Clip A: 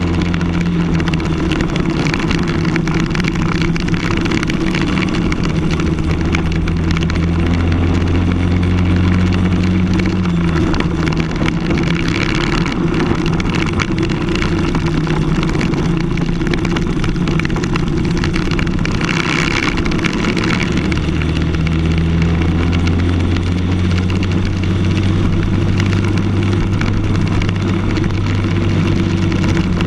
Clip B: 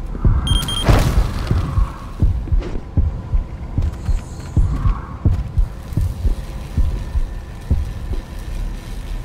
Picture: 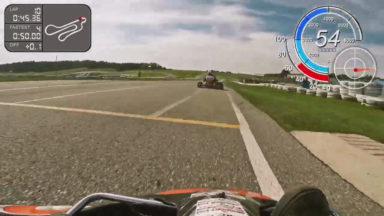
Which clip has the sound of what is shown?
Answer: A